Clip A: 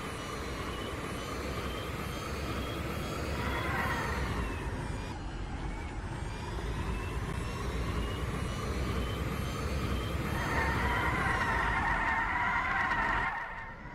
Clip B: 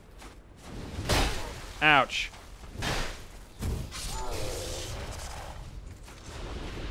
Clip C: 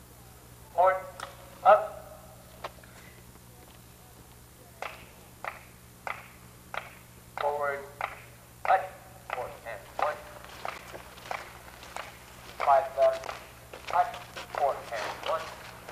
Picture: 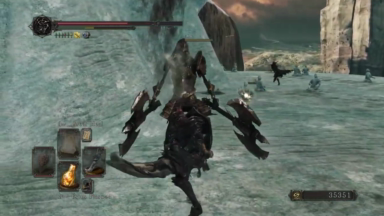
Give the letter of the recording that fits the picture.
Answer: B